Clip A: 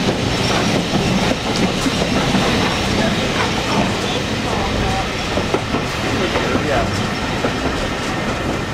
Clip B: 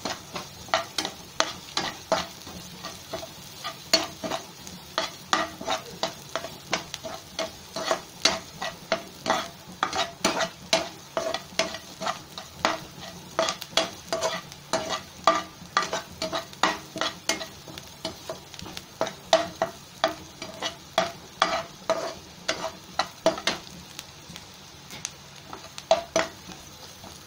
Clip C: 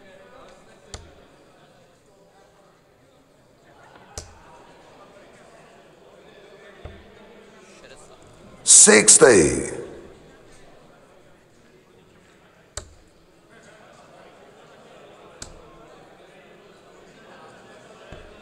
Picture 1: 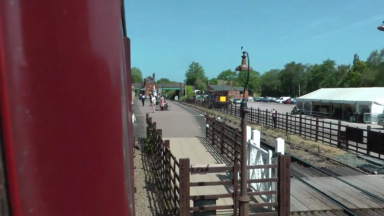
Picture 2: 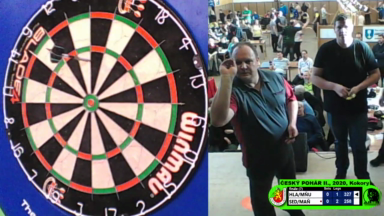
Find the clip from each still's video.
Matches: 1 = A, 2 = C